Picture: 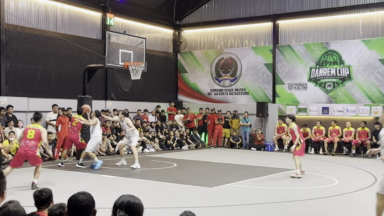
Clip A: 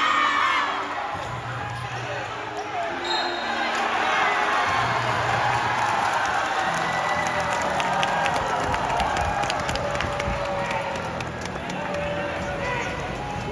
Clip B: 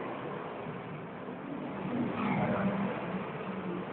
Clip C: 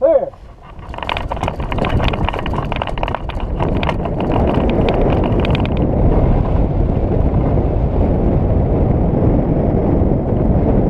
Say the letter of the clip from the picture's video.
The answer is A